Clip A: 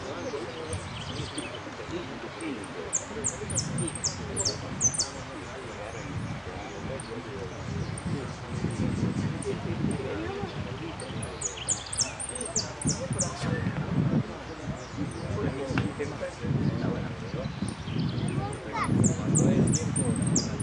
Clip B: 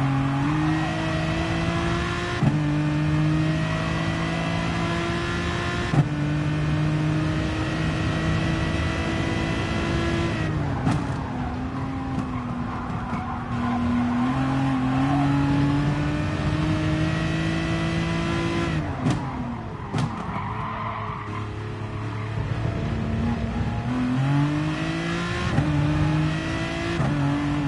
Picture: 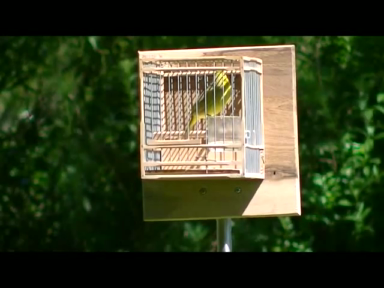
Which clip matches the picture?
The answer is A